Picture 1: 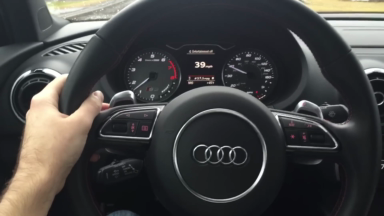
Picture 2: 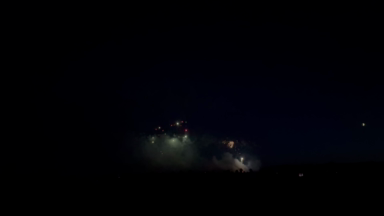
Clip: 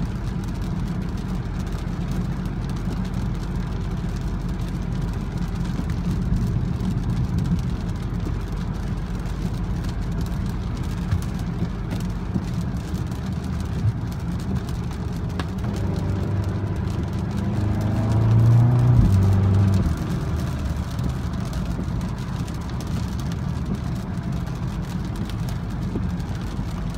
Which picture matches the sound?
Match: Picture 1